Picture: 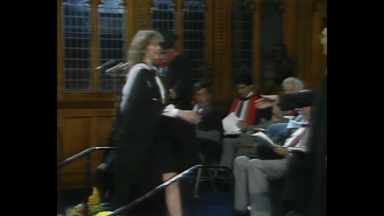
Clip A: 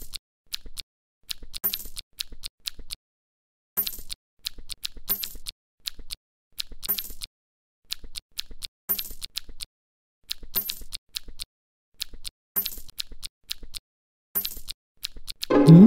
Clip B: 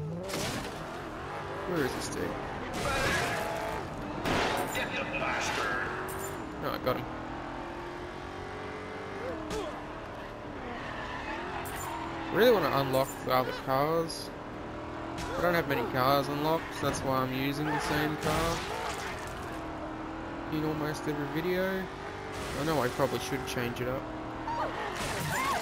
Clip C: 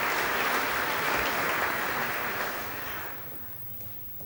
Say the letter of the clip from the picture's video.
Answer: C